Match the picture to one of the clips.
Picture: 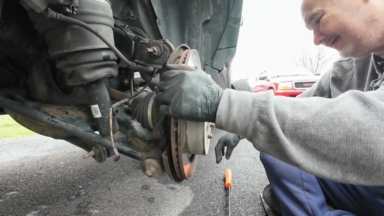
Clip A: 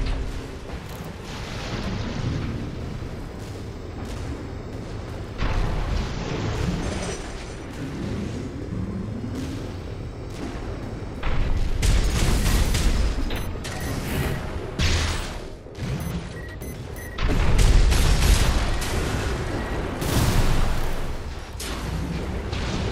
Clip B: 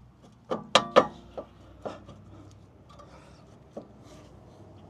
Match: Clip B